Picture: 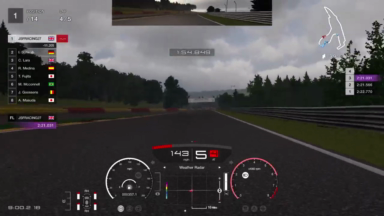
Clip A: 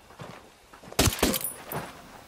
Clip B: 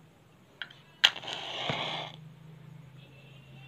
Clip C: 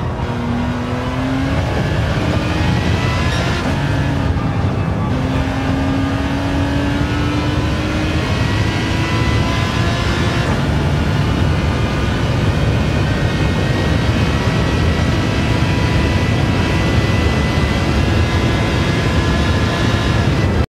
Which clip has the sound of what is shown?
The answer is C